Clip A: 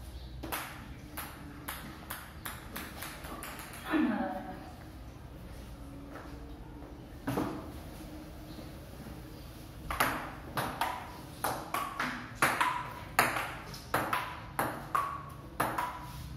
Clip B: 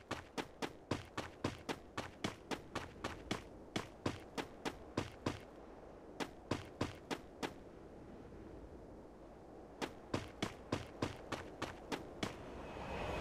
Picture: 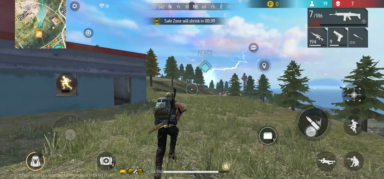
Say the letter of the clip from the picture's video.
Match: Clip B